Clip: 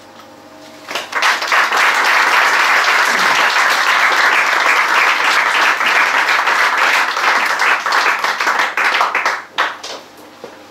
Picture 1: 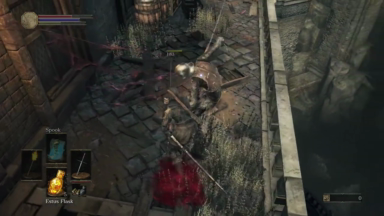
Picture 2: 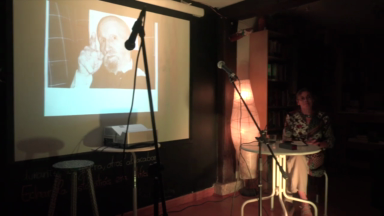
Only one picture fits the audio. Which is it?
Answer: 2